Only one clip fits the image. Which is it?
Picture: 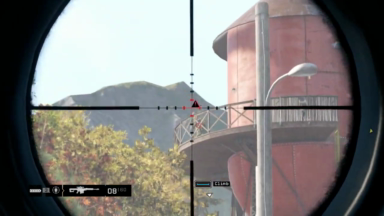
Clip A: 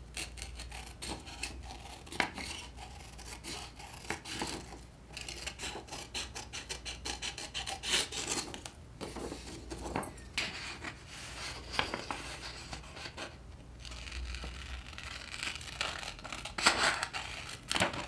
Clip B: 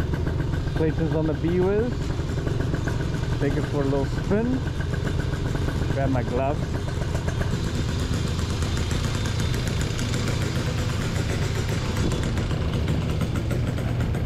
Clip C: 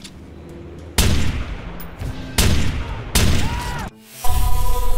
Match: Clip C